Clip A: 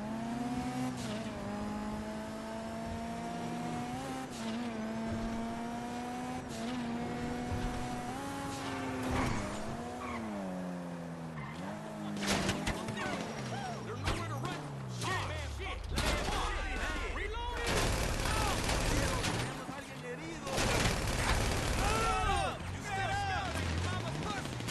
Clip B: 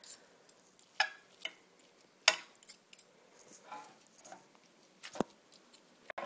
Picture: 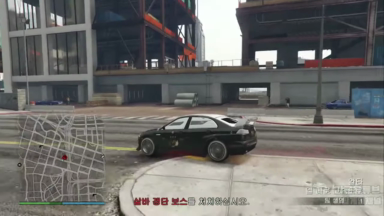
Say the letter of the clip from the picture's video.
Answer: A